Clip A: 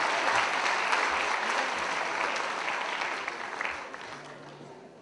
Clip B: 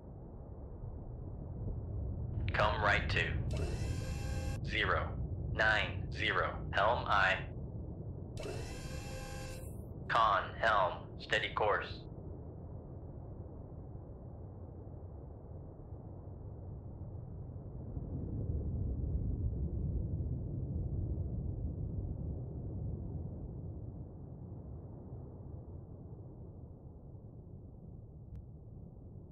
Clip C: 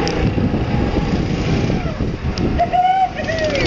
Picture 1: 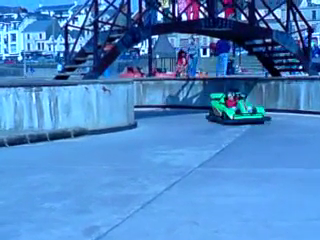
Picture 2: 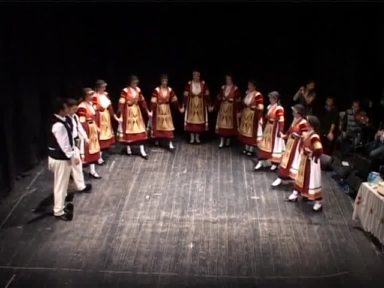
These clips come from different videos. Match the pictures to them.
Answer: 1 C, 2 A